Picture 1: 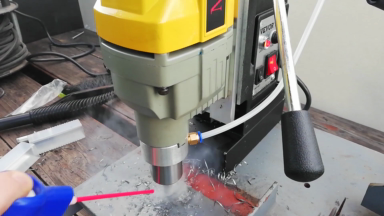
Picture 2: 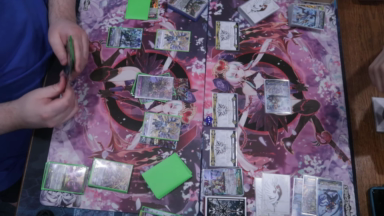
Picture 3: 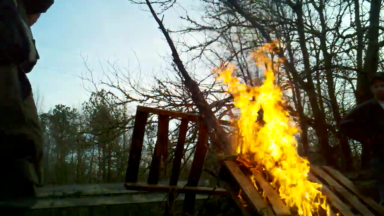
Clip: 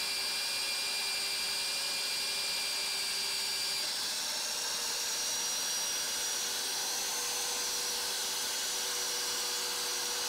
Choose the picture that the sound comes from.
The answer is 1